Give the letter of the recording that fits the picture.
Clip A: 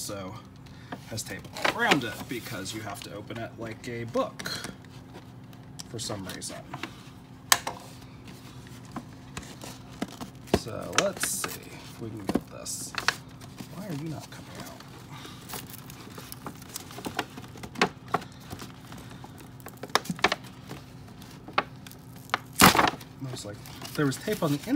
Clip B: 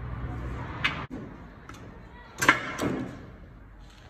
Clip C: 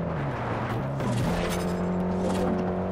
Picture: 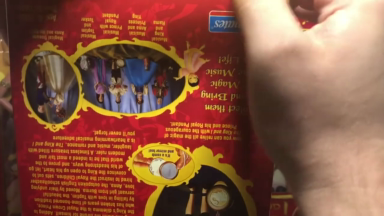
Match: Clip A